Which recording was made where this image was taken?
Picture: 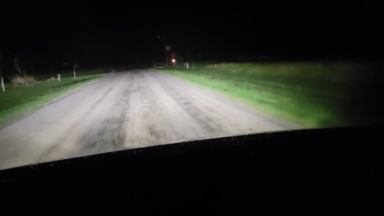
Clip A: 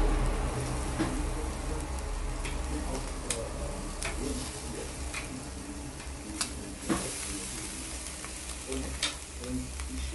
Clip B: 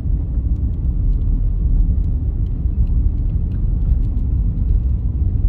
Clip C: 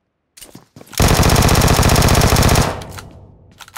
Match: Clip B